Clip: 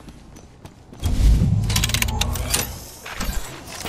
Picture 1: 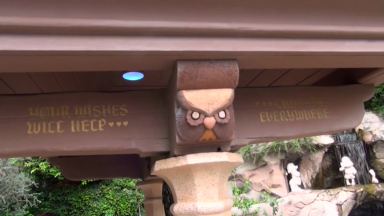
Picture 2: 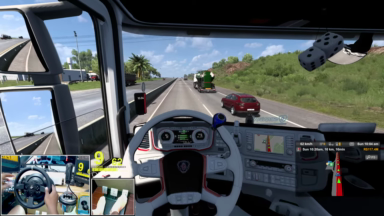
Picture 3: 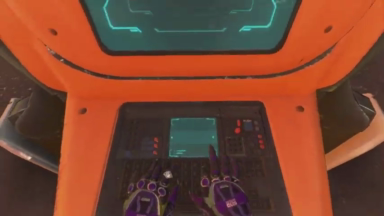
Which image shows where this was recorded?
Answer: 3